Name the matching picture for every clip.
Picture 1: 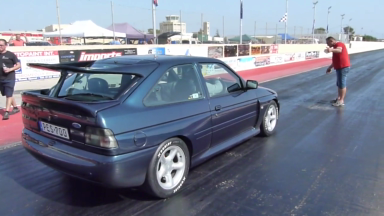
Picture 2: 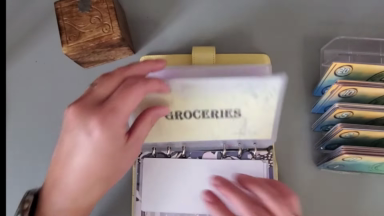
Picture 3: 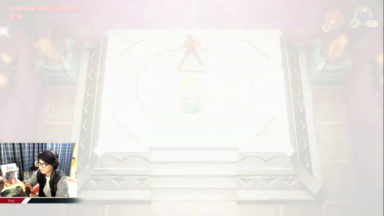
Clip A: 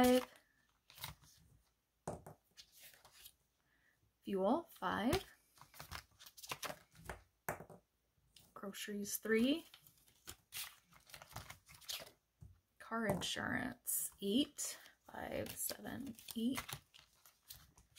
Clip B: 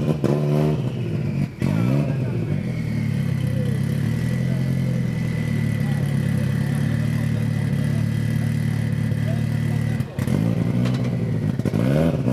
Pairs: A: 2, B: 1